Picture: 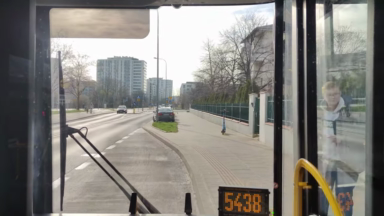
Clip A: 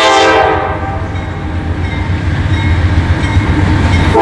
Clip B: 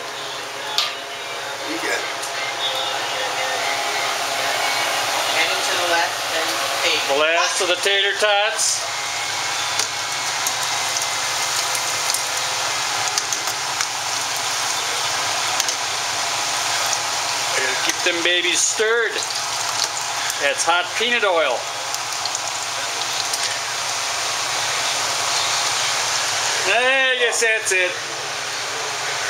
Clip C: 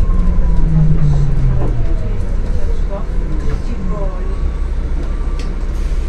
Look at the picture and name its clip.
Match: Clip C